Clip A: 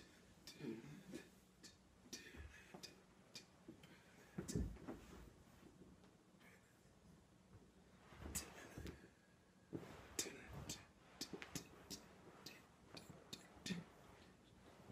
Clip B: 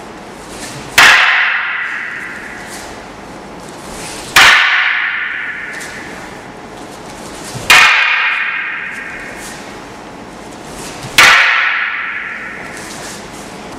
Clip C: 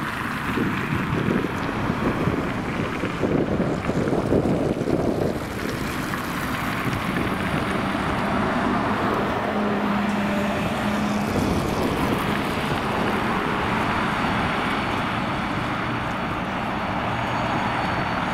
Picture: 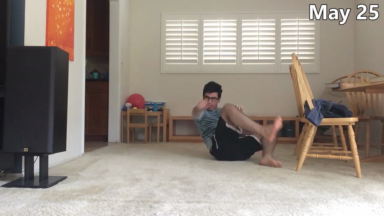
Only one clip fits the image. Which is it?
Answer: A